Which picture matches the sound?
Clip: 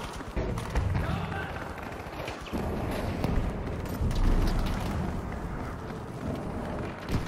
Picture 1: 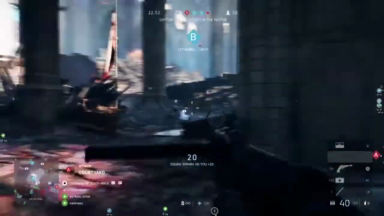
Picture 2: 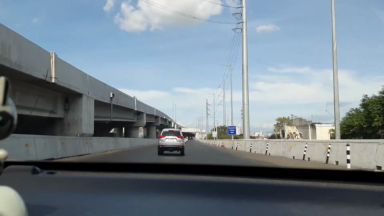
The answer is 1